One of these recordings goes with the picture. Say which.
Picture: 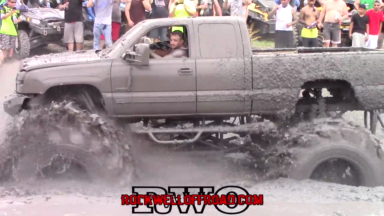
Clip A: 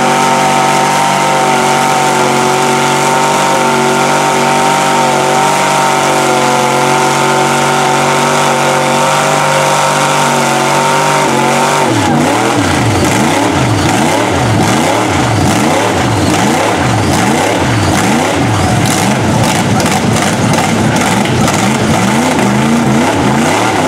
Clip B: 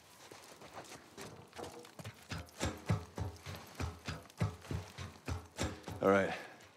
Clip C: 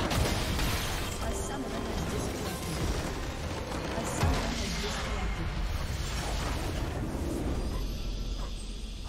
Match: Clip A